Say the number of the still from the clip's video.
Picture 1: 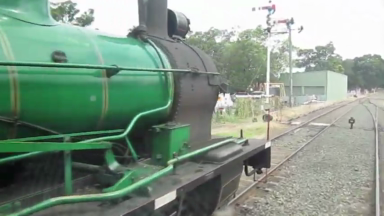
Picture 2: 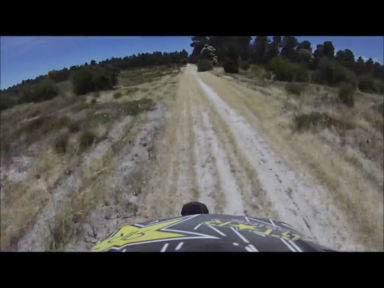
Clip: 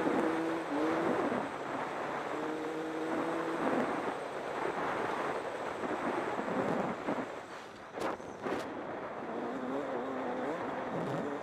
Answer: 2